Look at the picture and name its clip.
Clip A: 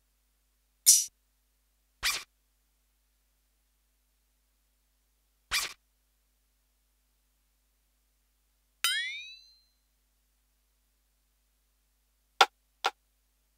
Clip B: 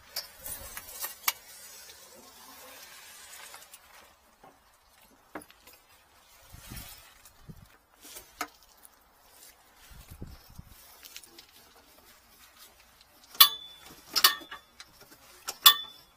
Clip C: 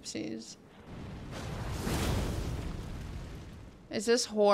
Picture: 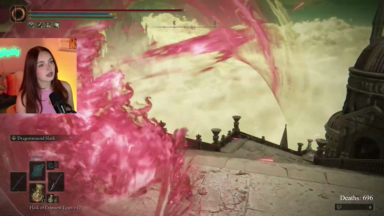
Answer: C